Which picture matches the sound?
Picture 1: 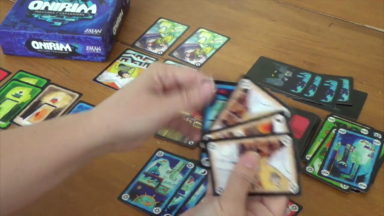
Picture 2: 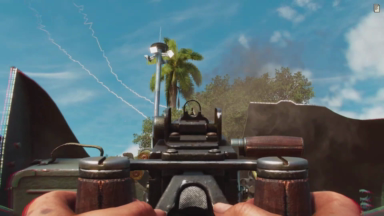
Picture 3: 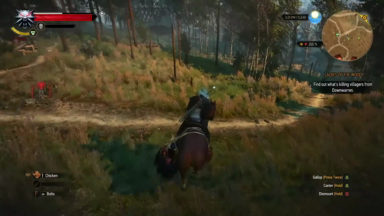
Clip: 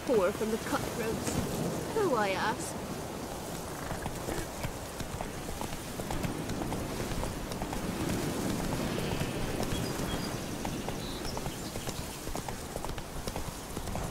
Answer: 3